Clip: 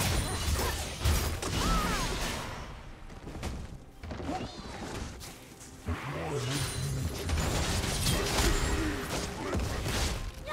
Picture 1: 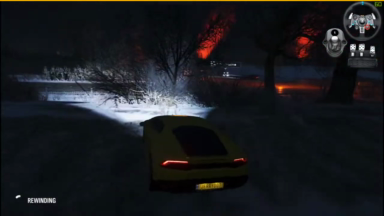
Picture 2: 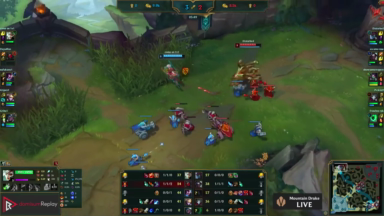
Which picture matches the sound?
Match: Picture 2